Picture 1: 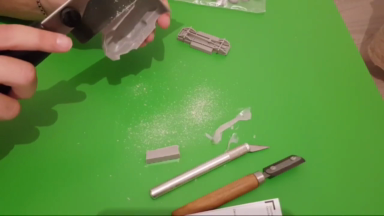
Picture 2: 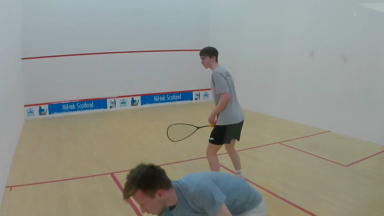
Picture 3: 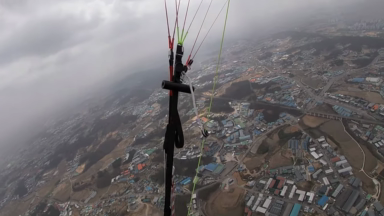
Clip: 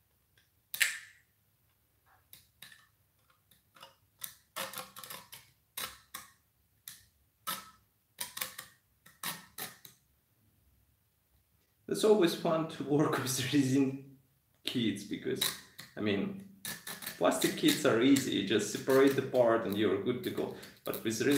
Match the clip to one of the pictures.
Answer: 1